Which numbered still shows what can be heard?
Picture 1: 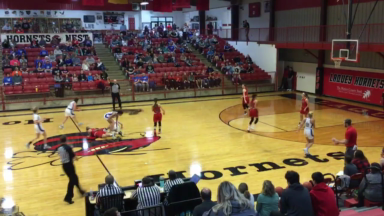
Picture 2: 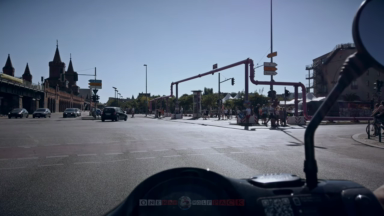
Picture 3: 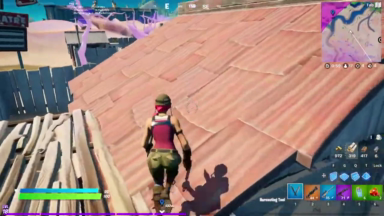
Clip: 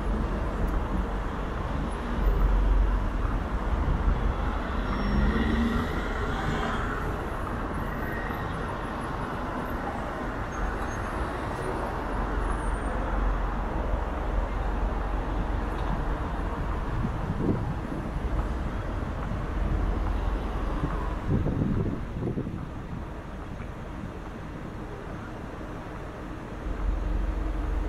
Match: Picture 2